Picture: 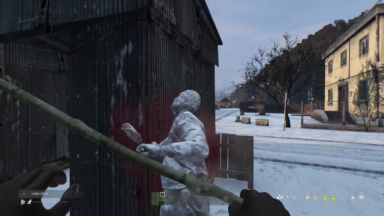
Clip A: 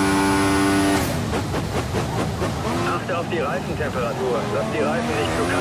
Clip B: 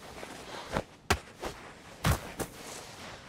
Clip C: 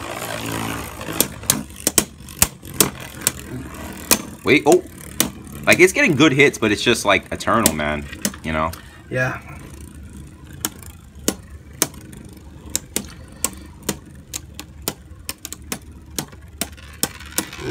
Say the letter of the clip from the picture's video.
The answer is B